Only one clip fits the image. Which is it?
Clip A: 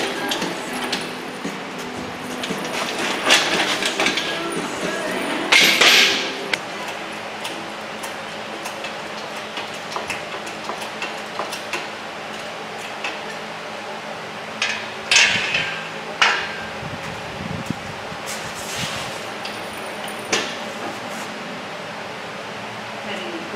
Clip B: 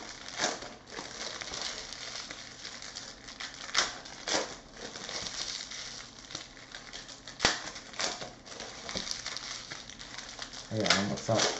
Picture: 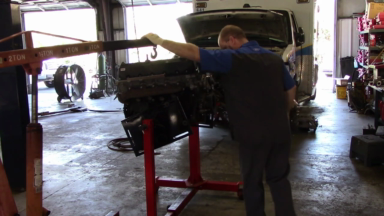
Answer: A